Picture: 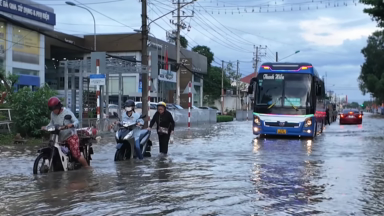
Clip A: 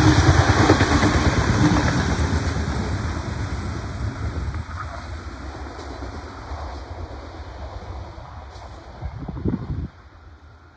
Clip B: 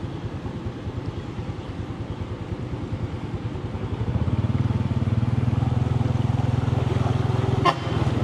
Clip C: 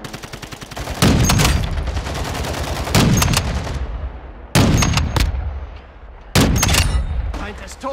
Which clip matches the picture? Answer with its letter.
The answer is B